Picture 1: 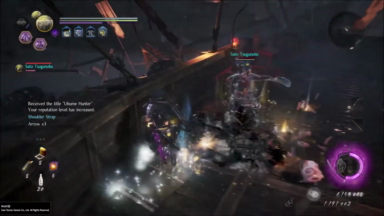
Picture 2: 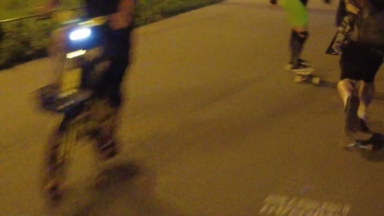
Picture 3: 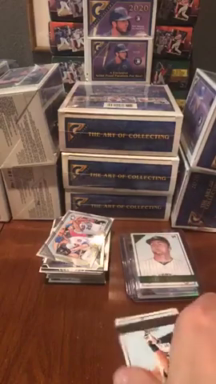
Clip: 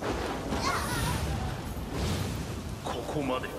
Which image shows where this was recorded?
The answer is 1